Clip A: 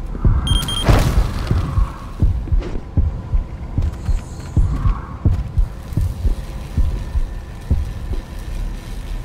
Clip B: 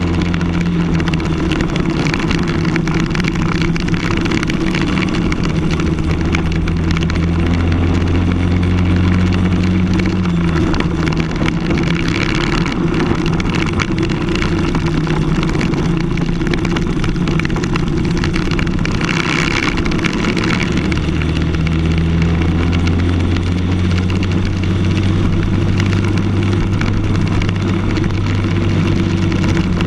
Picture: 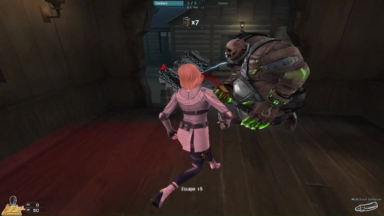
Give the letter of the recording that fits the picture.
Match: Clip A